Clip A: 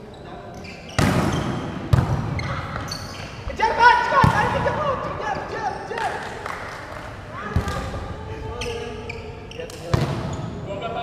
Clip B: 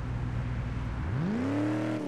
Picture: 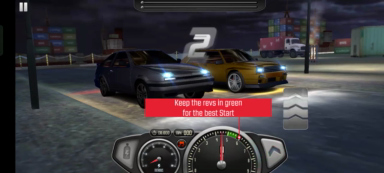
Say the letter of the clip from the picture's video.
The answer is B